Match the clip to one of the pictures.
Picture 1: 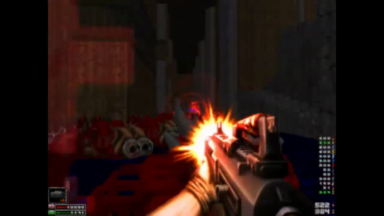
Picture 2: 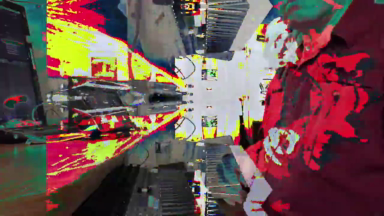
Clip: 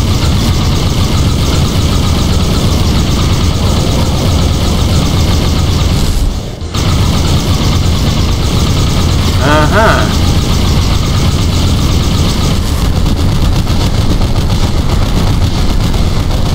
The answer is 1